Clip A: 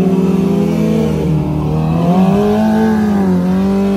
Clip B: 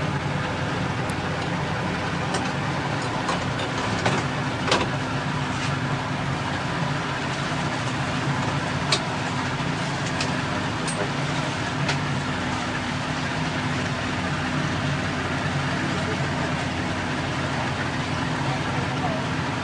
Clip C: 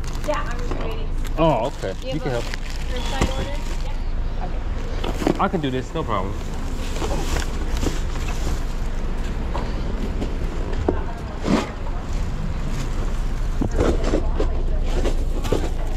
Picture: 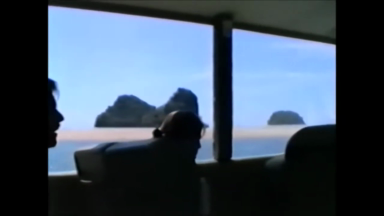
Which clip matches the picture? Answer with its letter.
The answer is B